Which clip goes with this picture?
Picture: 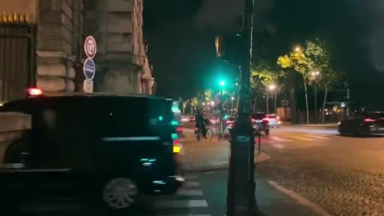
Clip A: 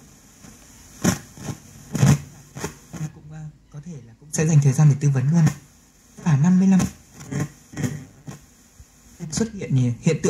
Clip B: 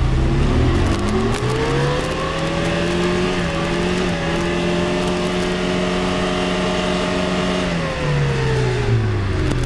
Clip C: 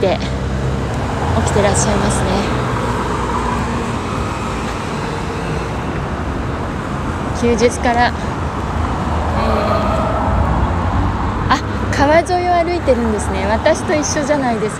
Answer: C